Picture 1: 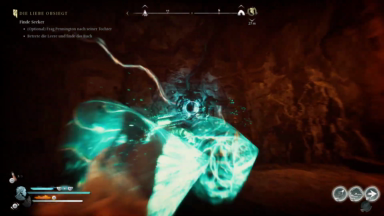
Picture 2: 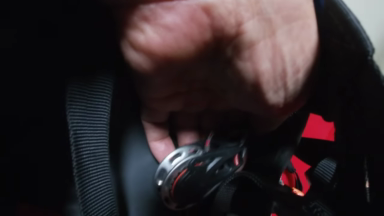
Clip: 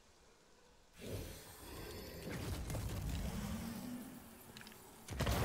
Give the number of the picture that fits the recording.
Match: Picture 1